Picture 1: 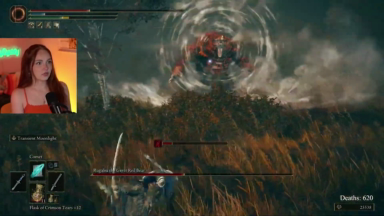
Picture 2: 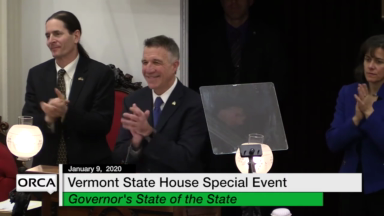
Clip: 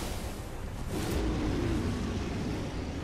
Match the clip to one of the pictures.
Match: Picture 1